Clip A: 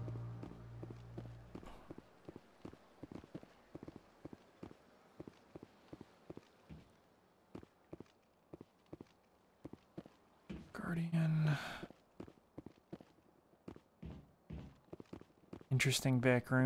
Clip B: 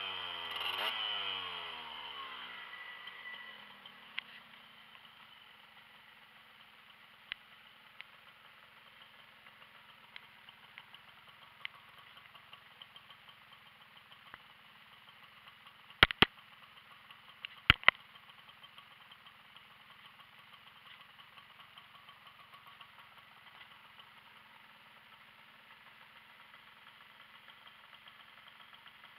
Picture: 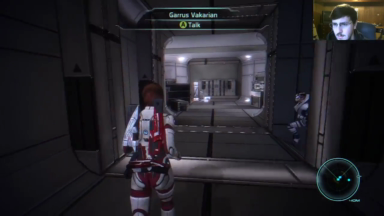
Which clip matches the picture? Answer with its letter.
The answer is A